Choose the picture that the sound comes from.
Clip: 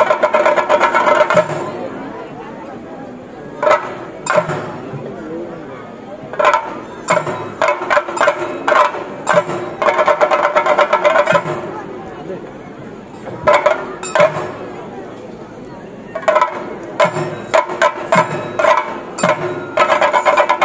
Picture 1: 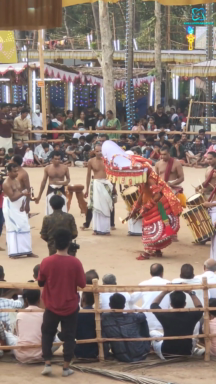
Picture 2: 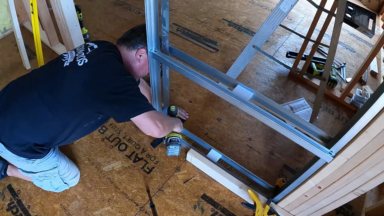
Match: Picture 1